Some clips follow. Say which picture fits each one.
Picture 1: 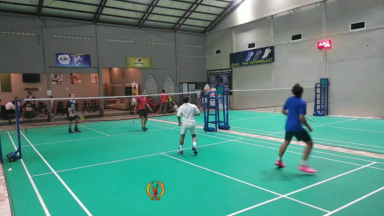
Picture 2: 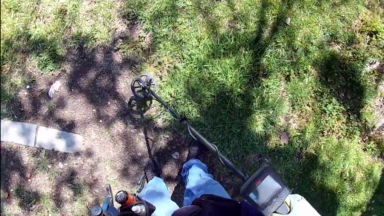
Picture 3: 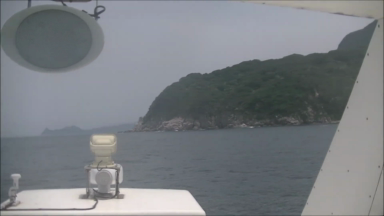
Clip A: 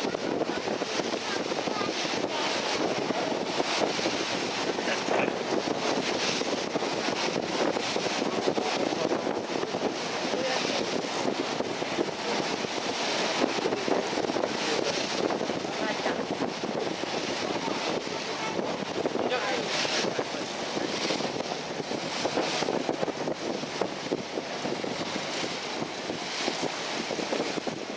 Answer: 3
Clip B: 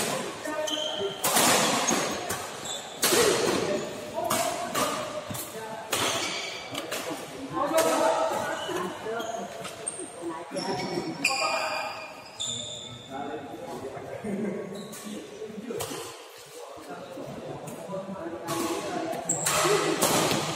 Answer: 1